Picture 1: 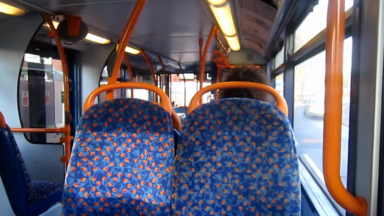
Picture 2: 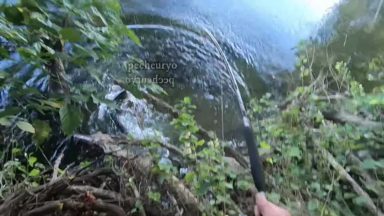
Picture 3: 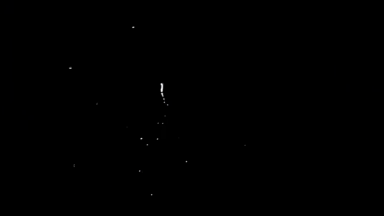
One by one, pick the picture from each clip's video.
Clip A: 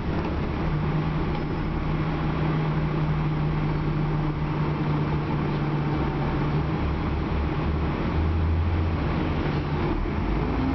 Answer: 1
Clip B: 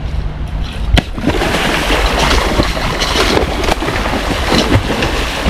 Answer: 2